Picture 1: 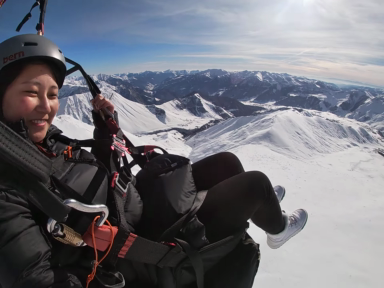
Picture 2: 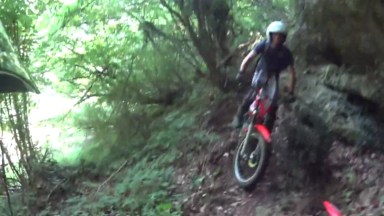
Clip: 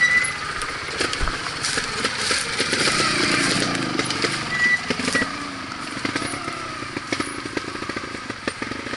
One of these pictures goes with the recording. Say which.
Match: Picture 2